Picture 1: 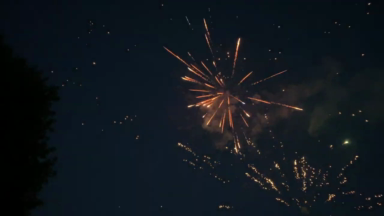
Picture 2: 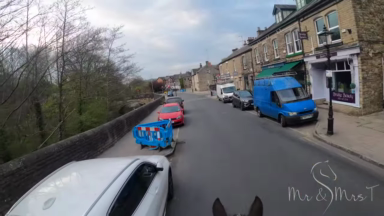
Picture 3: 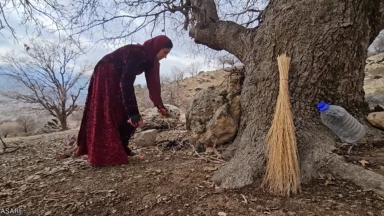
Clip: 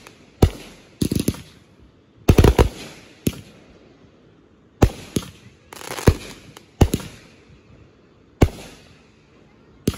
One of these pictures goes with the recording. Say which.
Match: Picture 1